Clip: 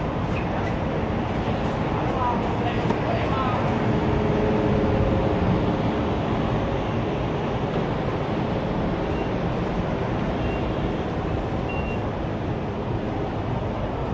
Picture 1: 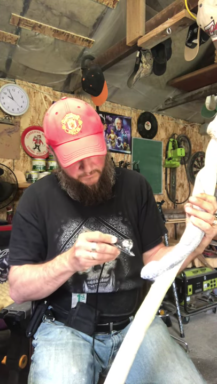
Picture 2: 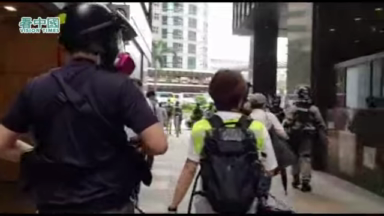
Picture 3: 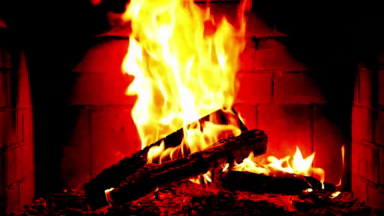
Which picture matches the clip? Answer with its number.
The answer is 2